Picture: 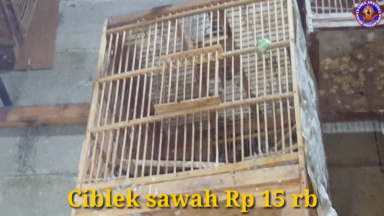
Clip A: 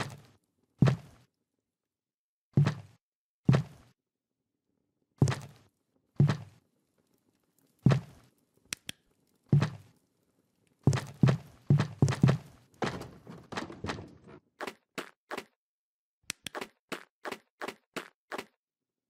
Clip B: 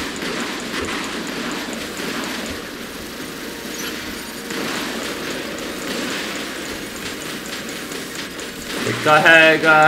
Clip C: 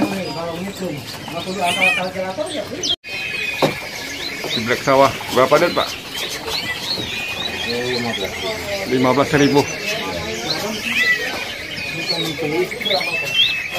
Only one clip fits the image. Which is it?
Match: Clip C